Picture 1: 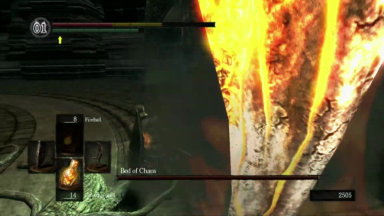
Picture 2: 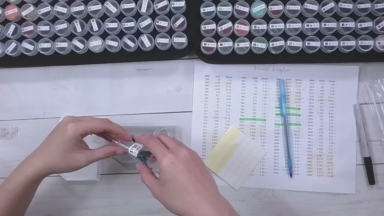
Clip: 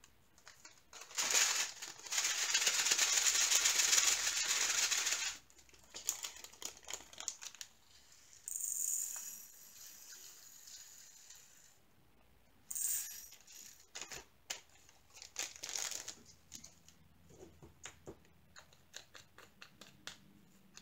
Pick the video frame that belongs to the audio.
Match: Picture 2